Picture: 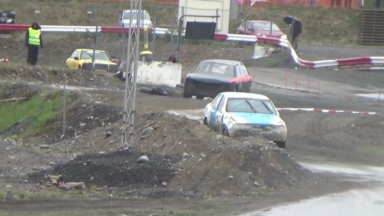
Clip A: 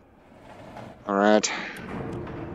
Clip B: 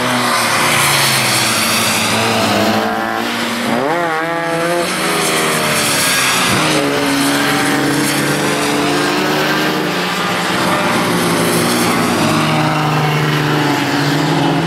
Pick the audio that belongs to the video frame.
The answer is B